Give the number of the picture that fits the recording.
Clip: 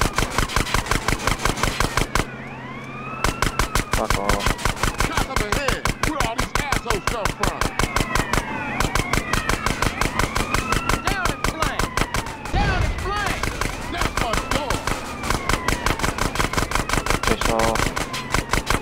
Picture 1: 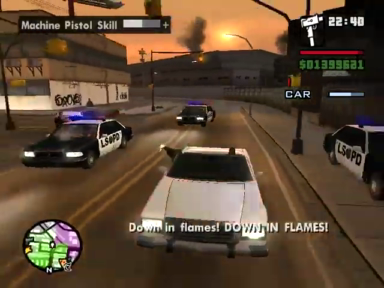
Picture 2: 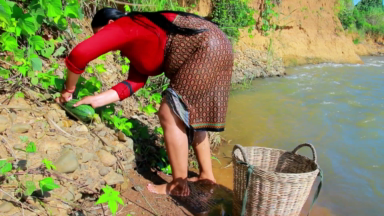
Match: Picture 1